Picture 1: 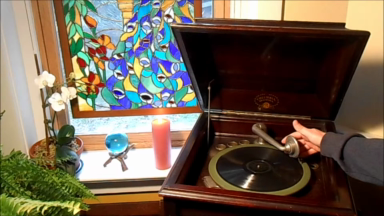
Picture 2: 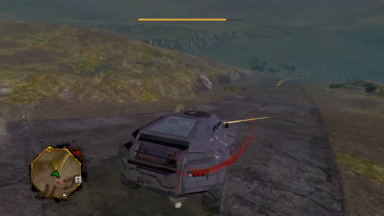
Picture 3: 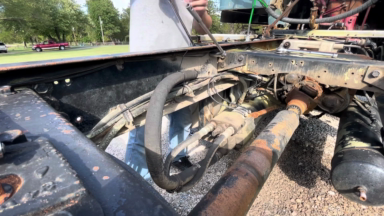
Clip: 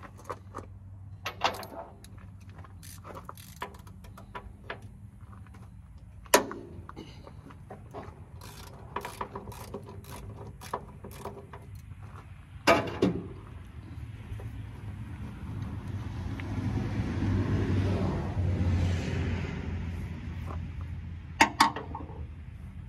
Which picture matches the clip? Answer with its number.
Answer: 3